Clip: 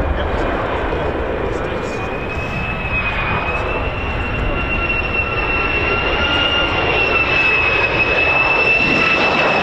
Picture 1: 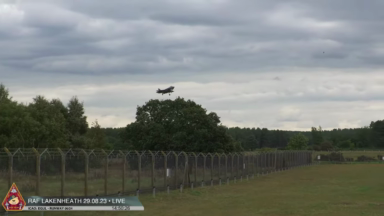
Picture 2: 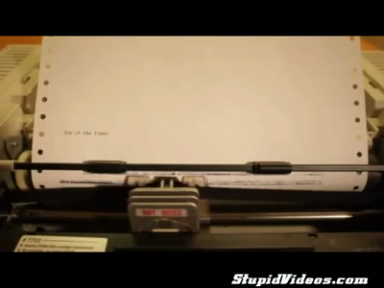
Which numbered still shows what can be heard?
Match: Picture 1